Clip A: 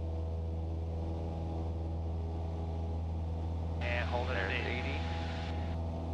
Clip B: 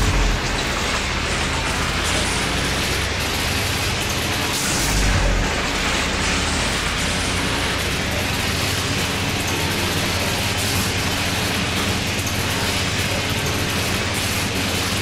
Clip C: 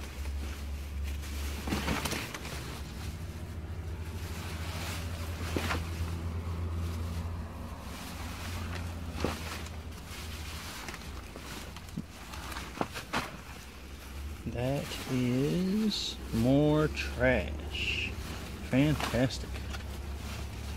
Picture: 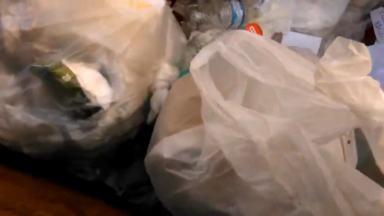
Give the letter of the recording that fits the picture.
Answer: C